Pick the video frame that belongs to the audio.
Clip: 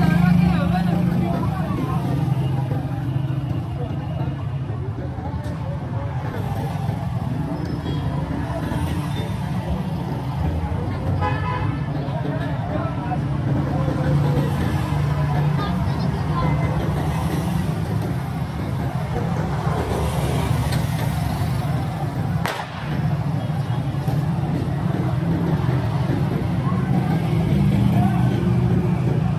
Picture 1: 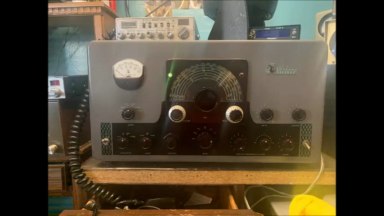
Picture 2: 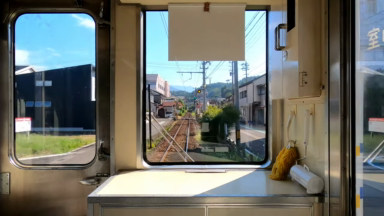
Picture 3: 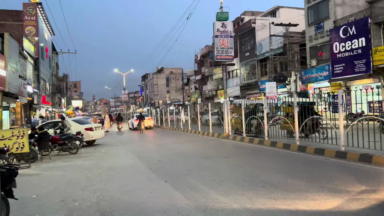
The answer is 3